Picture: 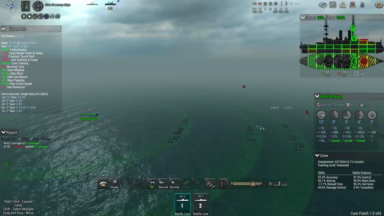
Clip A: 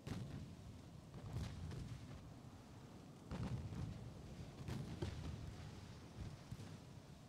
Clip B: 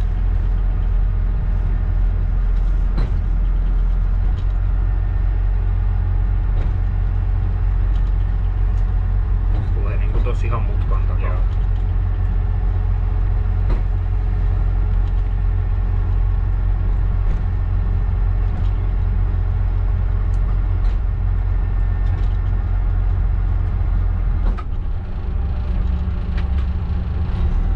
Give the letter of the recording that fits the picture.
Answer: A